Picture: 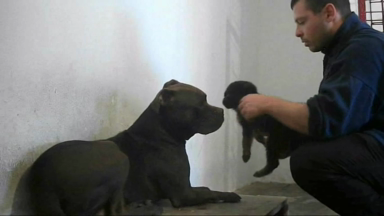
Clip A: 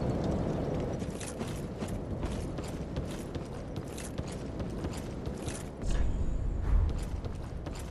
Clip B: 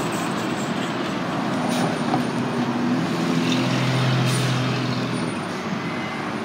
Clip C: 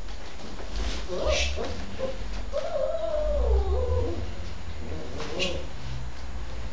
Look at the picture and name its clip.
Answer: C